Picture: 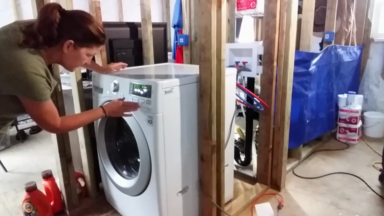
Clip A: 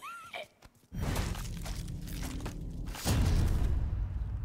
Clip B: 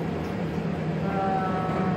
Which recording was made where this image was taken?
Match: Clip B